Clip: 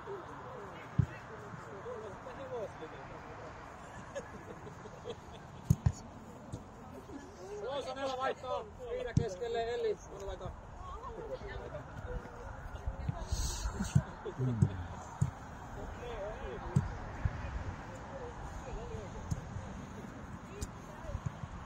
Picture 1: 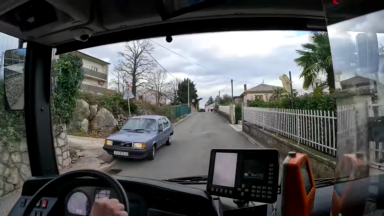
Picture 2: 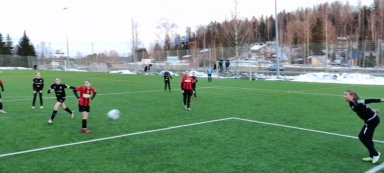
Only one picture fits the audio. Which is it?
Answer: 2